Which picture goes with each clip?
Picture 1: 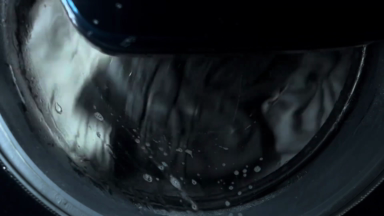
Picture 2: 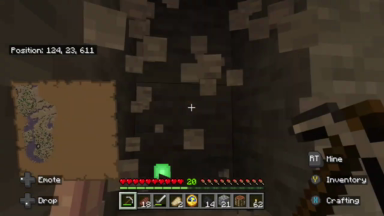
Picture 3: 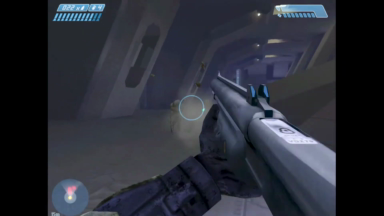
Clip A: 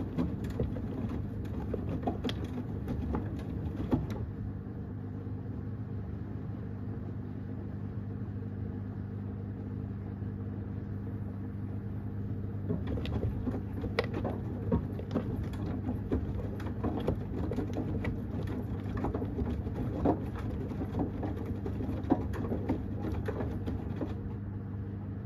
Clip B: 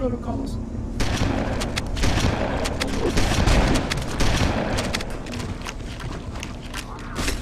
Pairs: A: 1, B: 3